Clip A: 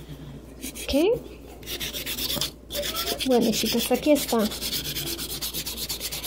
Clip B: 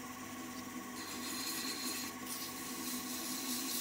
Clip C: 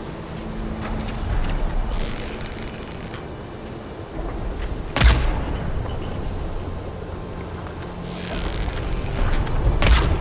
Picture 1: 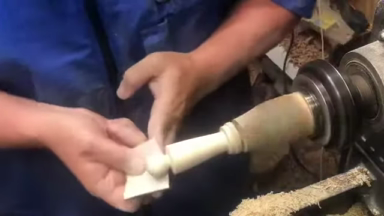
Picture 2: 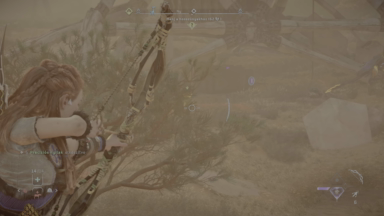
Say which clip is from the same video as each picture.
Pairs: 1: B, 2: C